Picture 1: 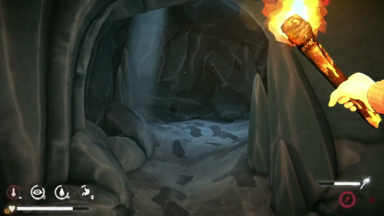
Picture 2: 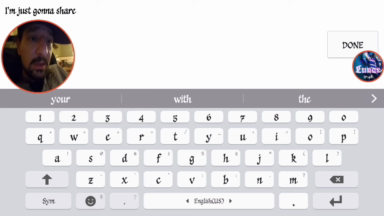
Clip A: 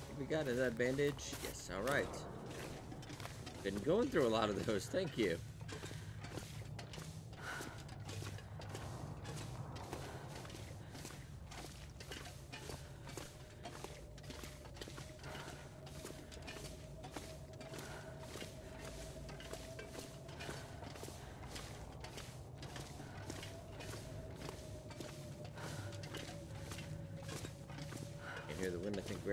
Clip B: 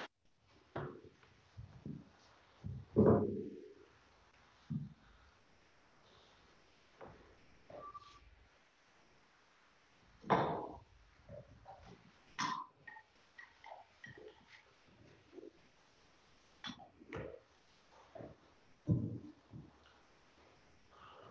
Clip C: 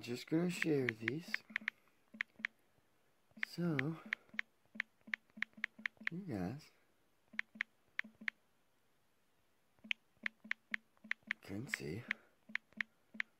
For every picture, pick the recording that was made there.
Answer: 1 A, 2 C